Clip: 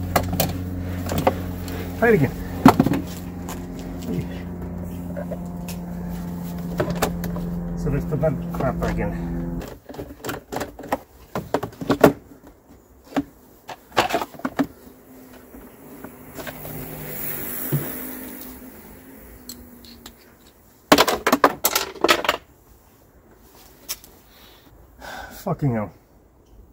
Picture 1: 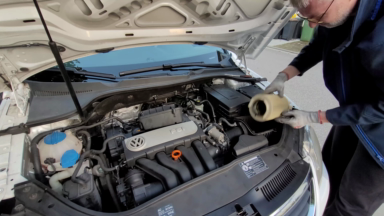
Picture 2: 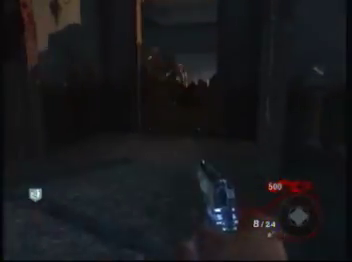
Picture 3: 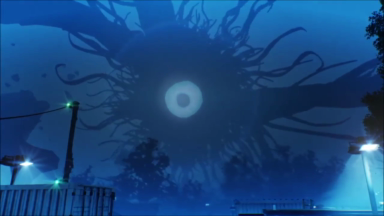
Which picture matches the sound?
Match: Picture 1